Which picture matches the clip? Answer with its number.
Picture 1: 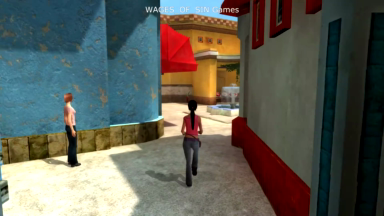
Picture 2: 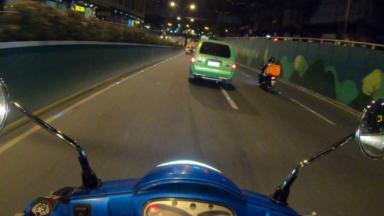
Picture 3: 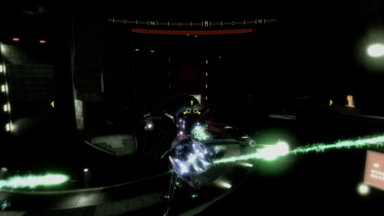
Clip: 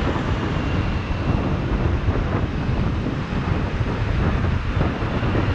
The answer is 2